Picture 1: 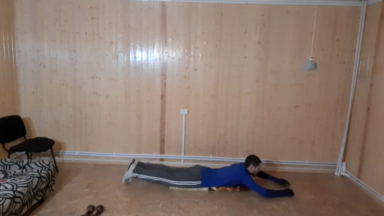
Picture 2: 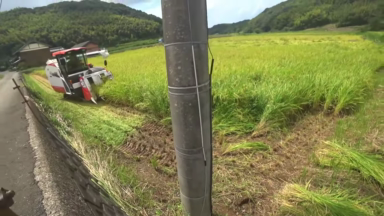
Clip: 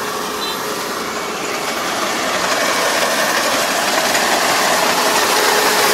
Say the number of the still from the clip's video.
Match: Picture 2